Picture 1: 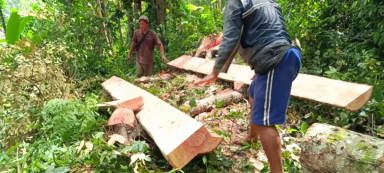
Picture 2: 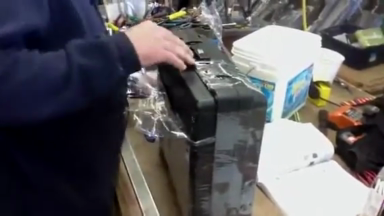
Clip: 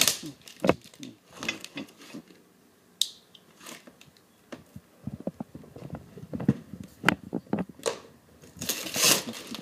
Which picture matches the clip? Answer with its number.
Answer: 2